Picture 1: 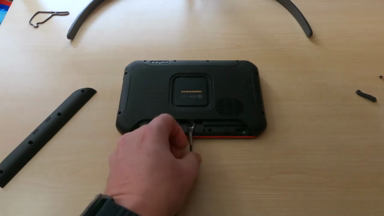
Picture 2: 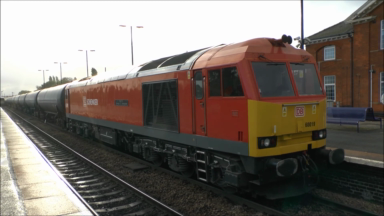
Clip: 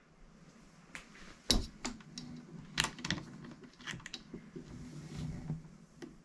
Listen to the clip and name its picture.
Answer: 1